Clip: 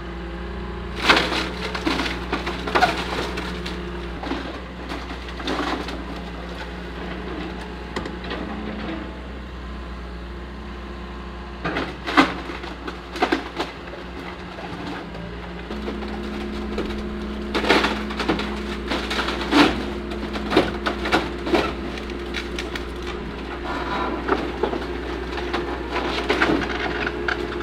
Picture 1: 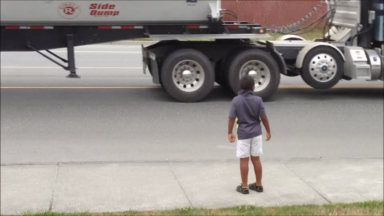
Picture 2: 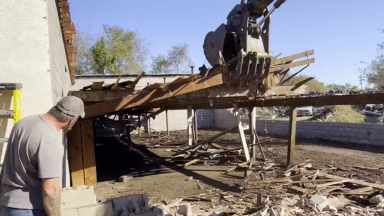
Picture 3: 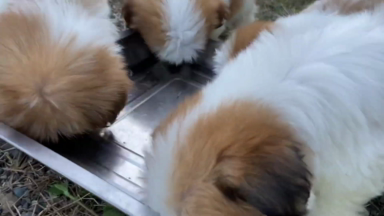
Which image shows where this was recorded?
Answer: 2